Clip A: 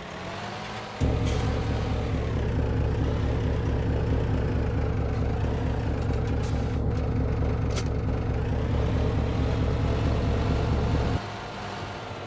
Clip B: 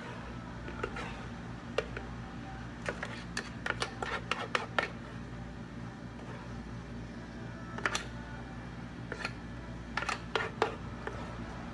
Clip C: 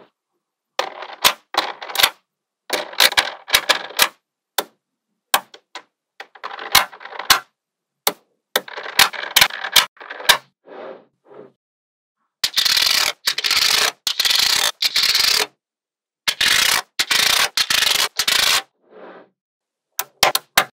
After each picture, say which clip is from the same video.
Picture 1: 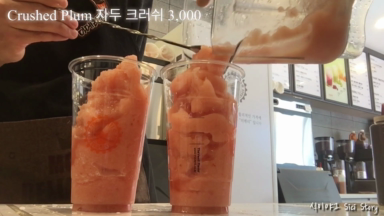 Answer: B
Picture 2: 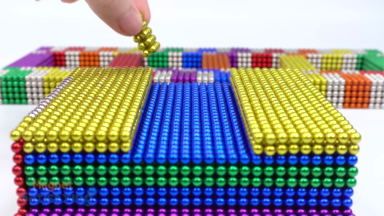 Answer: C